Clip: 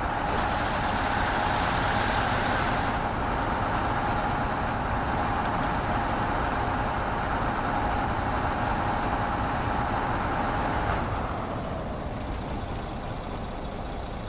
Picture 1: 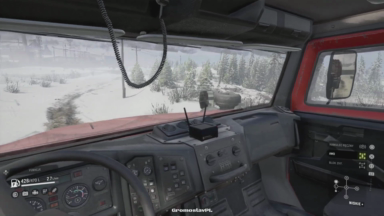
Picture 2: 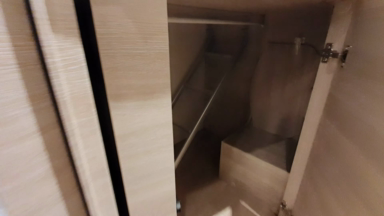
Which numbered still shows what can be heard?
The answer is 1